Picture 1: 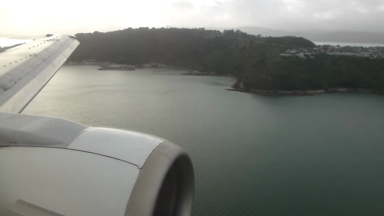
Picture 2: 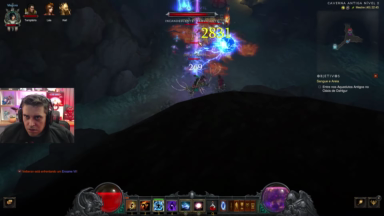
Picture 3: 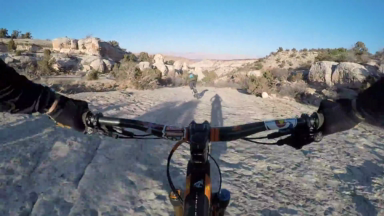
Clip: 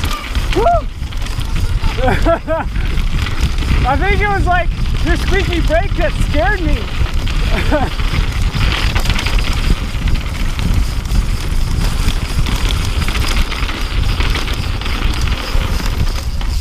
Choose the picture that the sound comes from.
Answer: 3